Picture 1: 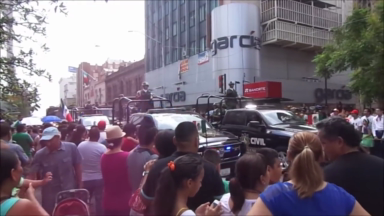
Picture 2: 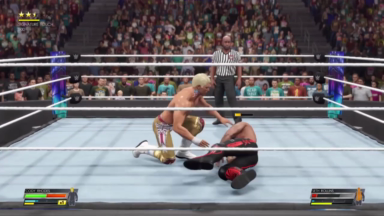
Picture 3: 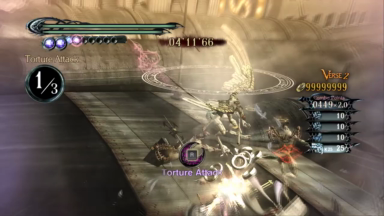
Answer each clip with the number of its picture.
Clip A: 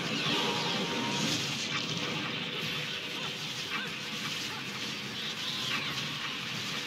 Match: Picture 3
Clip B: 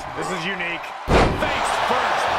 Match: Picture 2